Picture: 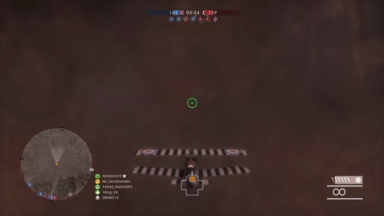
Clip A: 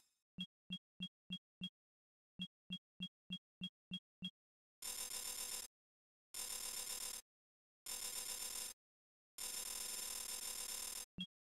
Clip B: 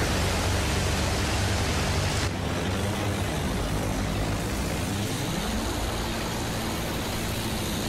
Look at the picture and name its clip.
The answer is B